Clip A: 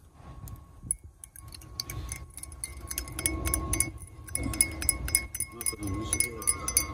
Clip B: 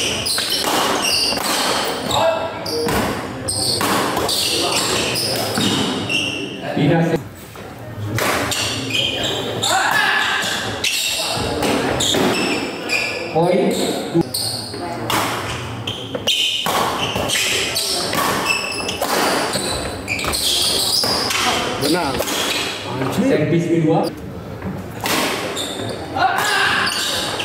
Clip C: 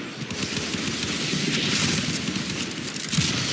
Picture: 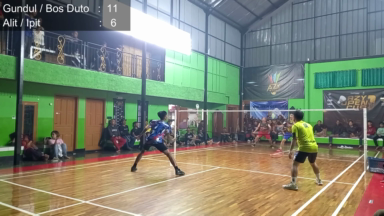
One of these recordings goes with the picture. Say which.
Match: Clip B